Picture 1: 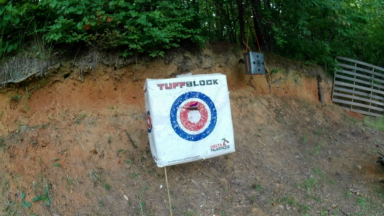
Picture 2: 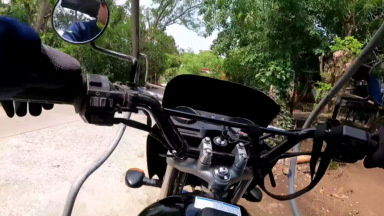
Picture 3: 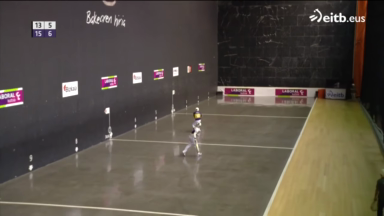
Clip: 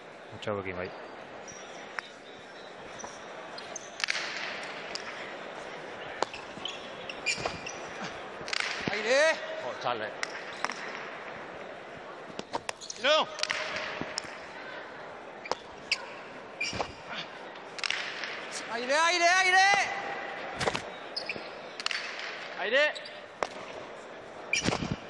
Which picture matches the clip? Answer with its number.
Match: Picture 3